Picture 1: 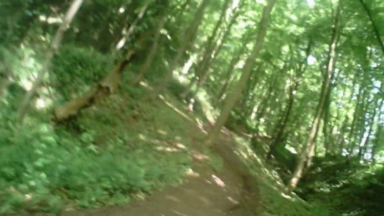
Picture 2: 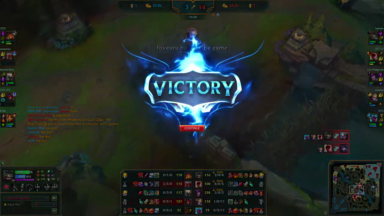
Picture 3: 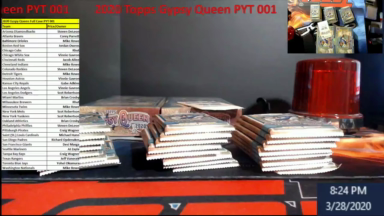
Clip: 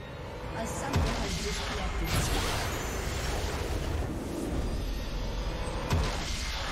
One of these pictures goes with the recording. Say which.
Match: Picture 2